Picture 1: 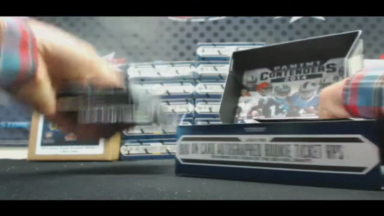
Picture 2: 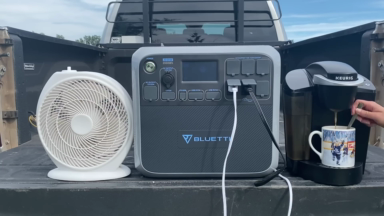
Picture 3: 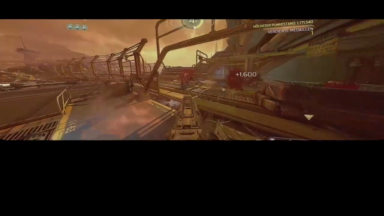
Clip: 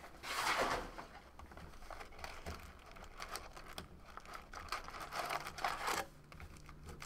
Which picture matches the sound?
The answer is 1